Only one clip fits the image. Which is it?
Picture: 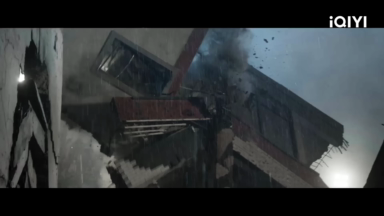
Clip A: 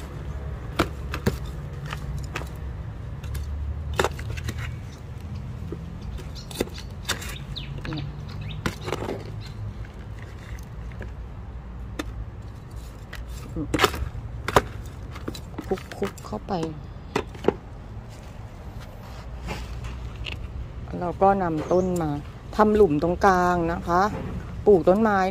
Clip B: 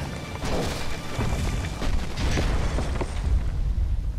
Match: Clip B